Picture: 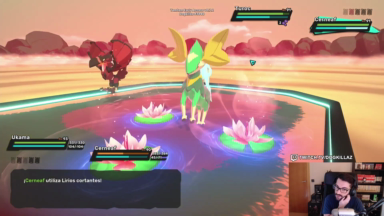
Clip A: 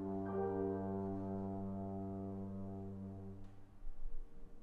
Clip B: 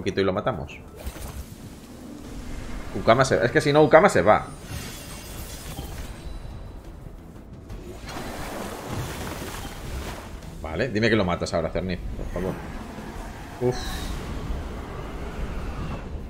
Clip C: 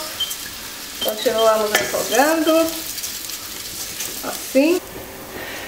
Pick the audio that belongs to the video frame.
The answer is B